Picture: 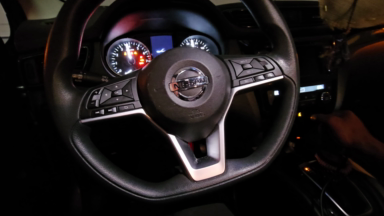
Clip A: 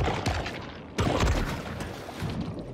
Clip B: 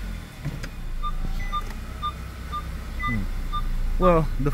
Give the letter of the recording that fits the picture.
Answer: B